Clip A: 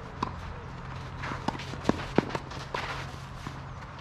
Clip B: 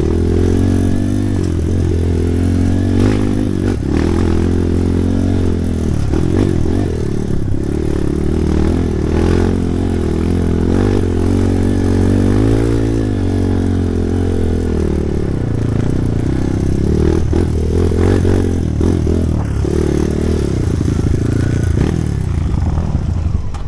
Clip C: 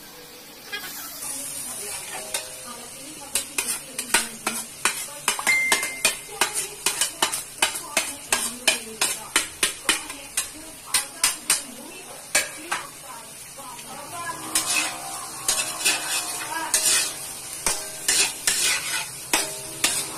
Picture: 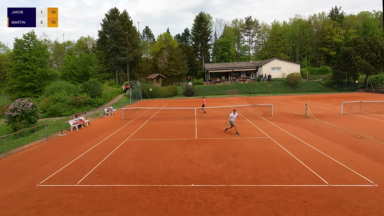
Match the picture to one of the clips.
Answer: A